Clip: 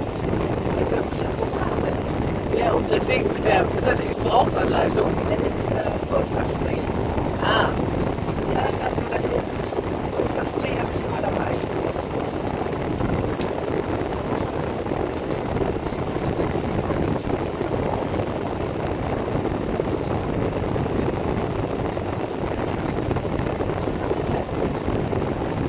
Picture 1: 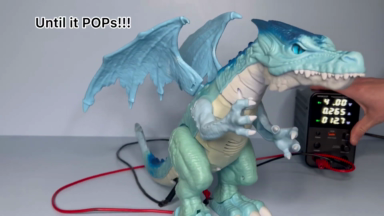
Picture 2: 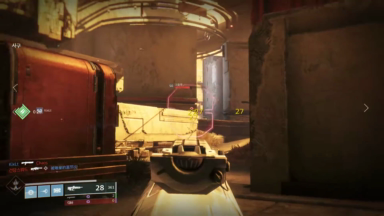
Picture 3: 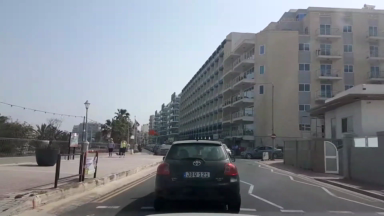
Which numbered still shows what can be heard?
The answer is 3